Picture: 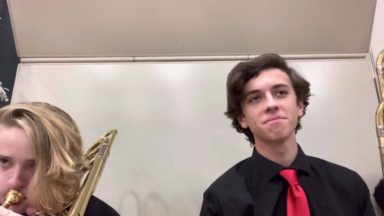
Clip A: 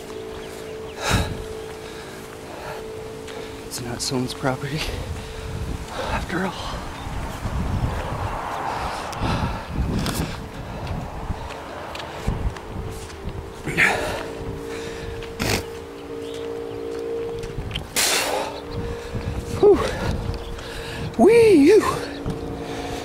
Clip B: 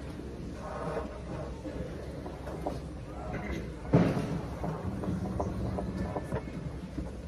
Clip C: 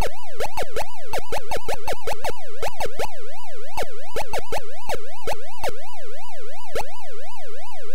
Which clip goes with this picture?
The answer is B